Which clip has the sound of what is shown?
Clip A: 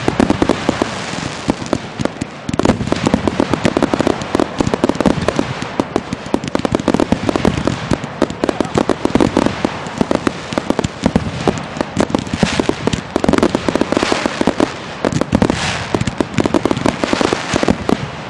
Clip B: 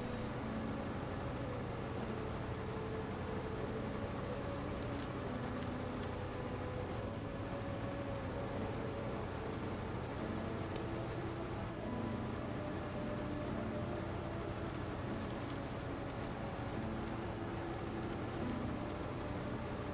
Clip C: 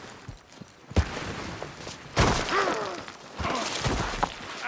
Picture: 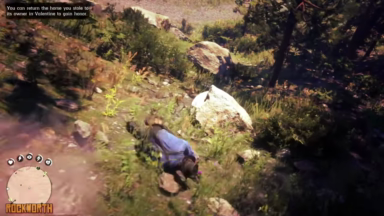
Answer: C